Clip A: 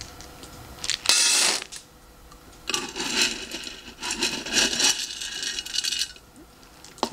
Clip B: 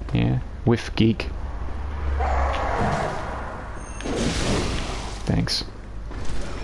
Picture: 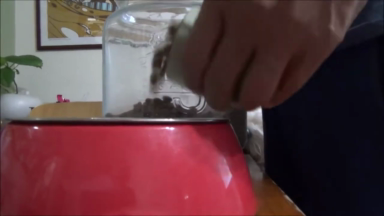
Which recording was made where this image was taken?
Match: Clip A